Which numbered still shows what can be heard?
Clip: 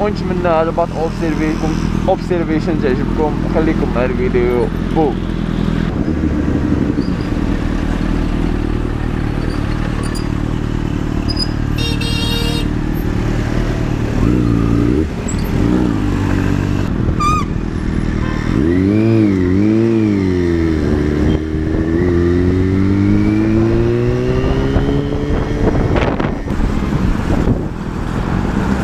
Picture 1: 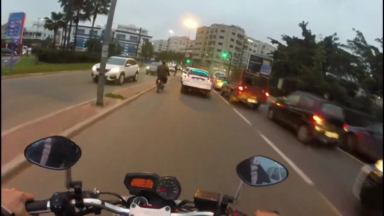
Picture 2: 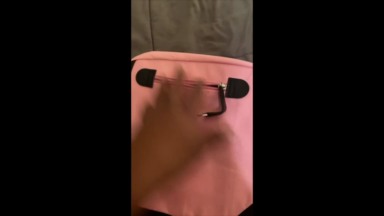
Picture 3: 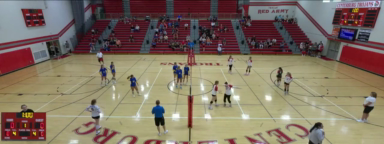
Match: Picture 1